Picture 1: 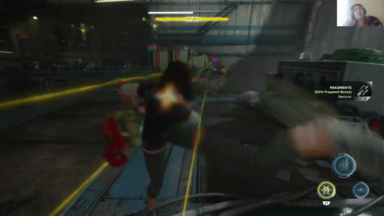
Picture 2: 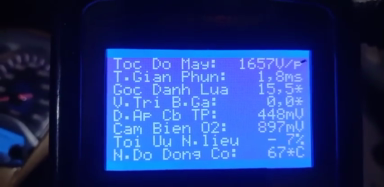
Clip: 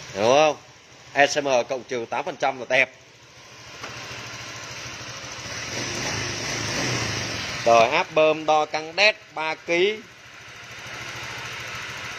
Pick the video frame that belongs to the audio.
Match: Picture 2